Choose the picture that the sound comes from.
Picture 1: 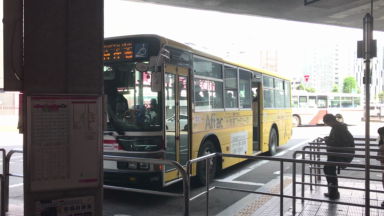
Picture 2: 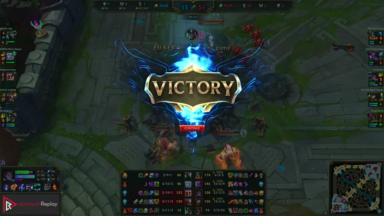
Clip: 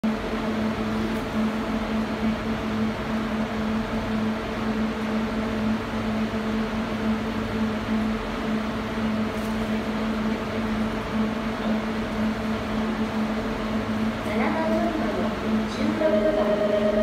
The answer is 1